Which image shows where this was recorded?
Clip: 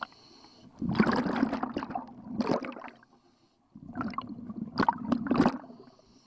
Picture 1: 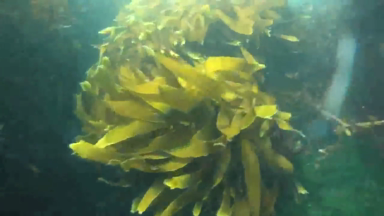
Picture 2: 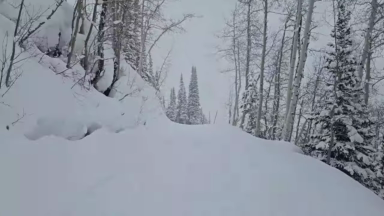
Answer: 1